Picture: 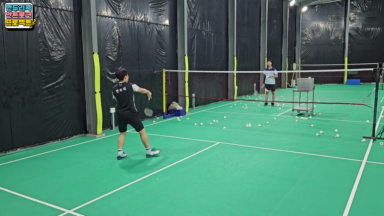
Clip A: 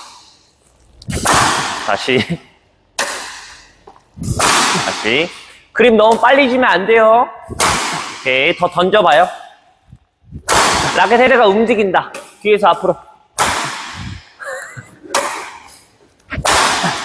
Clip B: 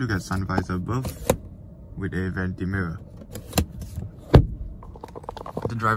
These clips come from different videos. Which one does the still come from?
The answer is A